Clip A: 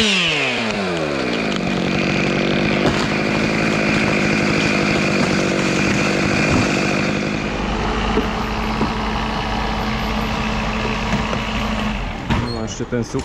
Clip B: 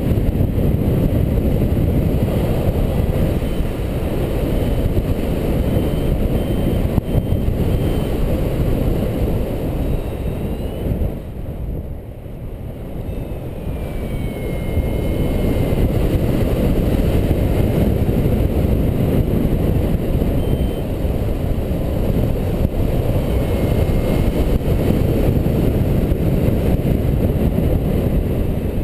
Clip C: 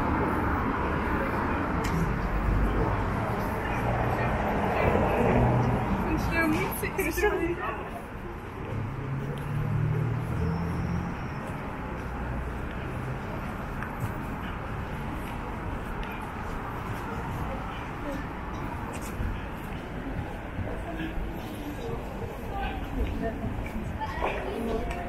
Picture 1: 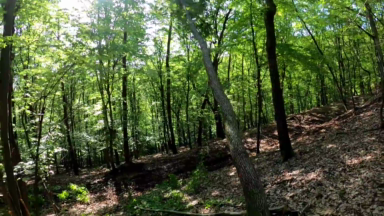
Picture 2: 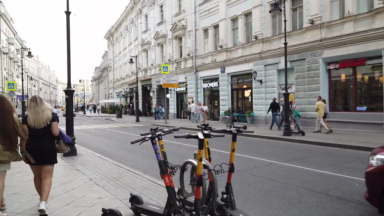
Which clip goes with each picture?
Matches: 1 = A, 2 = C